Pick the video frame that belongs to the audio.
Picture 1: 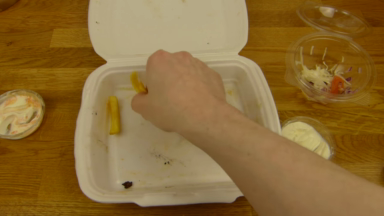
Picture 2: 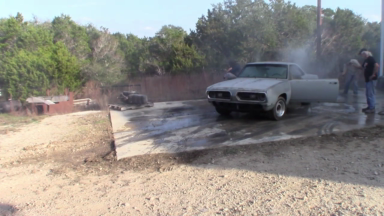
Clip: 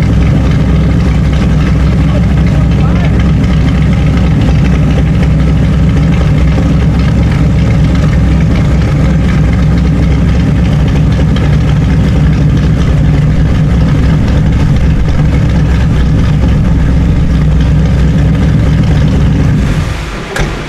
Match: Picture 2